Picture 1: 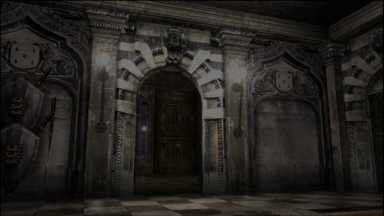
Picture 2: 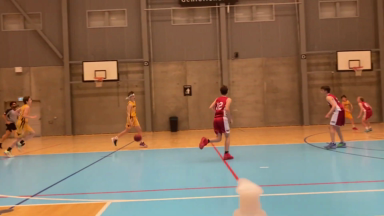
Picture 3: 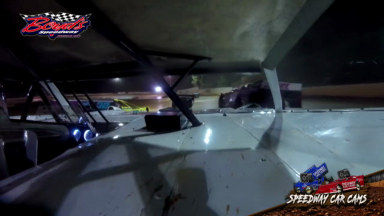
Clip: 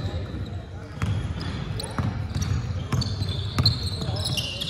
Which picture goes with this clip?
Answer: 2